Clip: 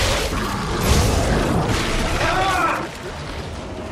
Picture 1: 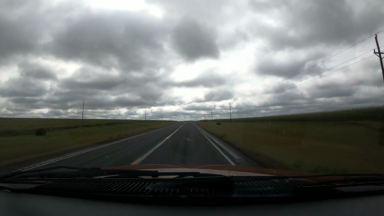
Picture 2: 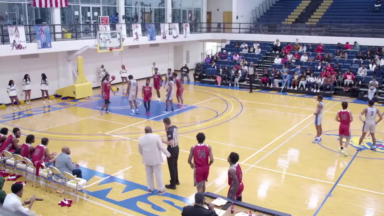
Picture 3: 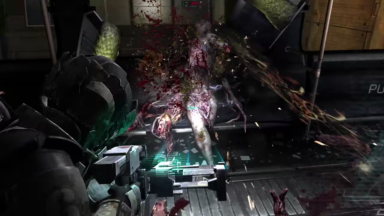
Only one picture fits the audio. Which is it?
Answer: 3